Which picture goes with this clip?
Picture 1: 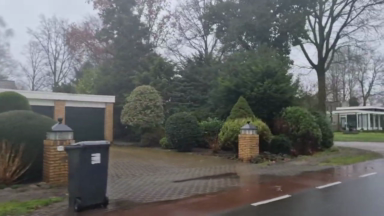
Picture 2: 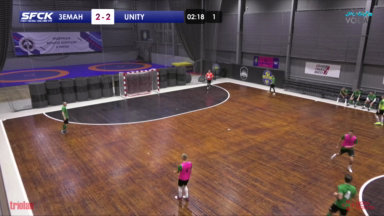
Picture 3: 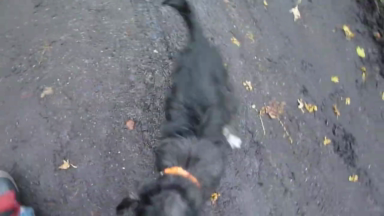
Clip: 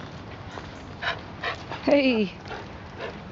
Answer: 3